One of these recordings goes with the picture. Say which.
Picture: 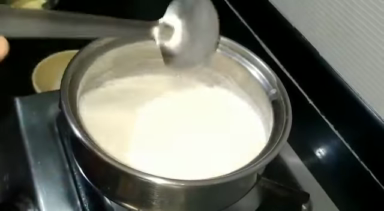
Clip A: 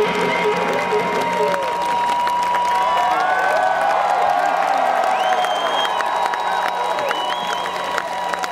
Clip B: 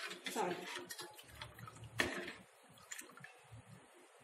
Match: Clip B